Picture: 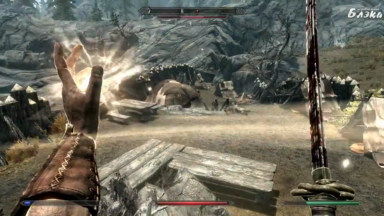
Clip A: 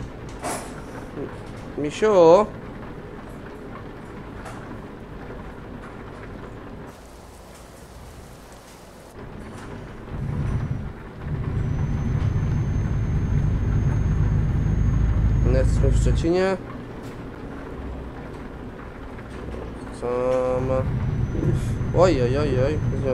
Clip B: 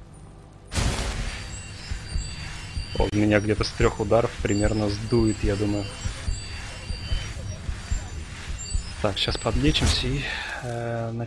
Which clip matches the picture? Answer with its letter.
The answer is B